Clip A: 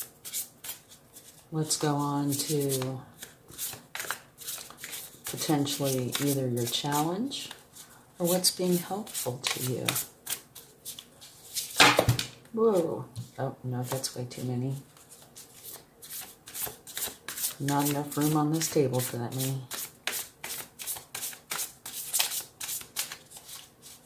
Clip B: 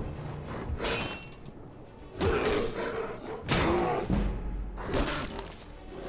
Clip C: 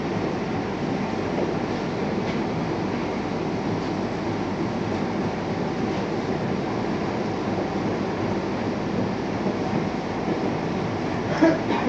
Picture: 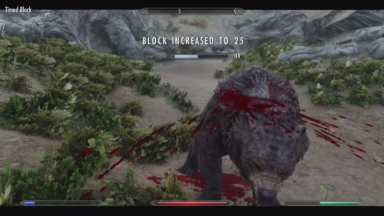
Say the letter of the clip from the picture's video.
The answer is B